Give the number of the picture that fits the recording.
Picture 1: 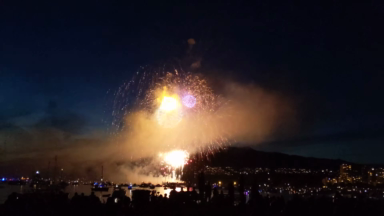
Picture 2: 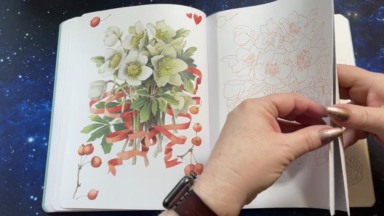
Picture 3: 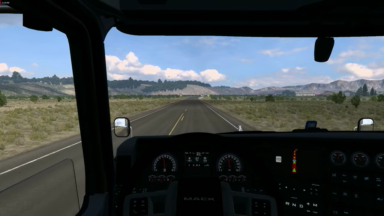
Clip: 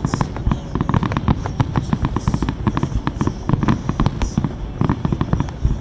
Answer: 1